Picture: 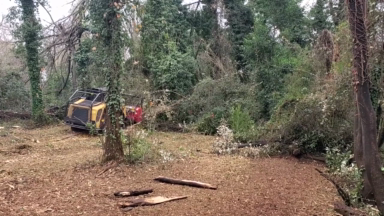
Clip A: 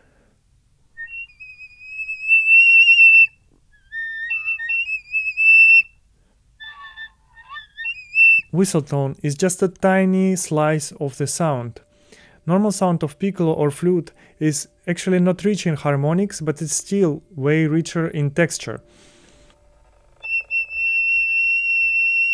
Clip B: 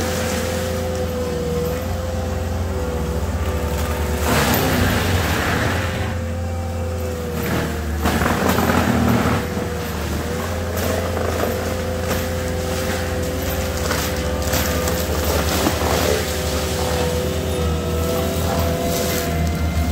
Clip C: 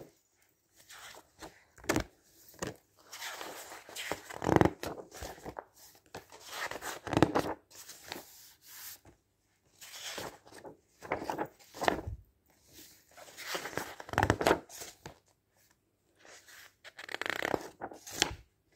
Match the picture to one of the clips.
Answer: B